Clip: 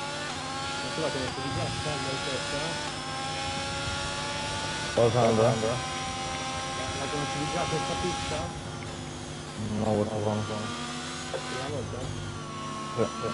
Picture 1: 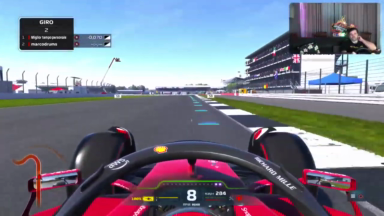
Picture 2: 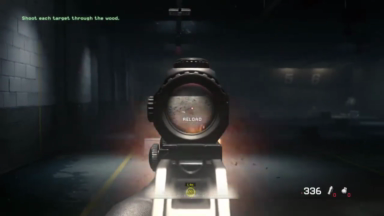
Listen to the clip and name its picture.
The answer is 1